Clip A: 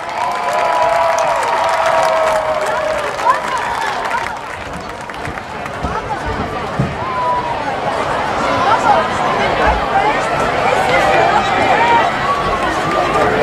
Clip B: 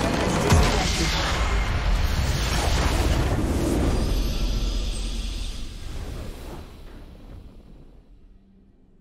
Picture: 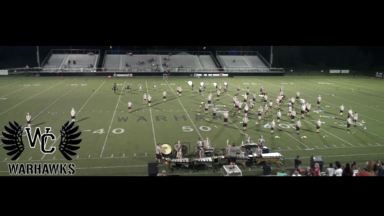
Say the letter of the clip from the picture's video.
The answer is A